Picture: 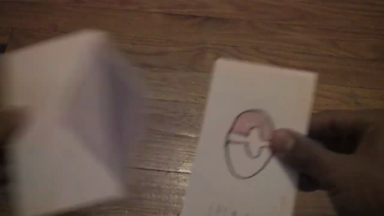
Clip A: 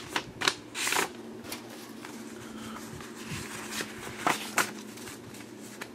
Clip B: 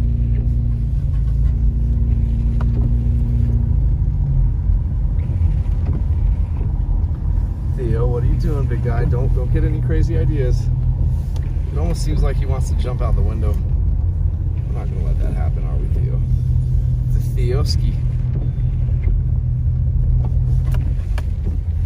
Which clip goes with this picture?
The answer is A